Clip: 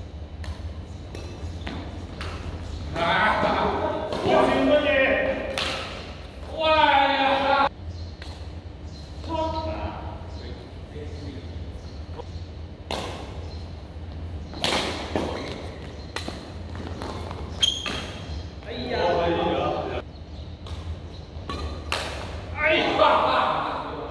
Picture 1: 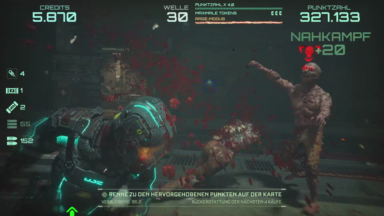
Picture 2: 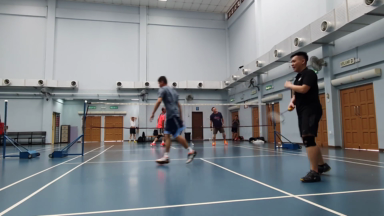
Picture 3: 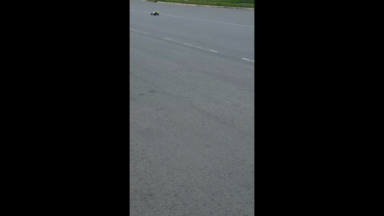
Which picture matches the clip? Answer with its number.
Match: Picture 2